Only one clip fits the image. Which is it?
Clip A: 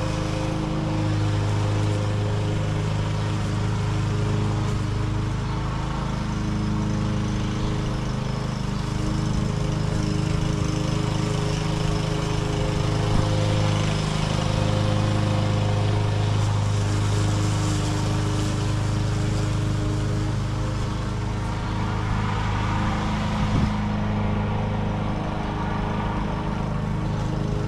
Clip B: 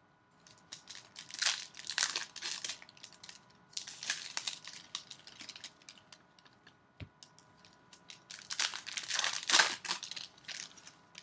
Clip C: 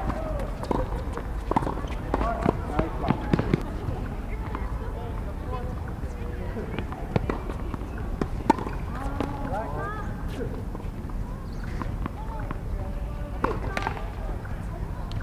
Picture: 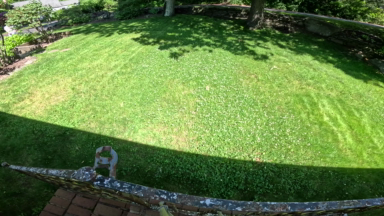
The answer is A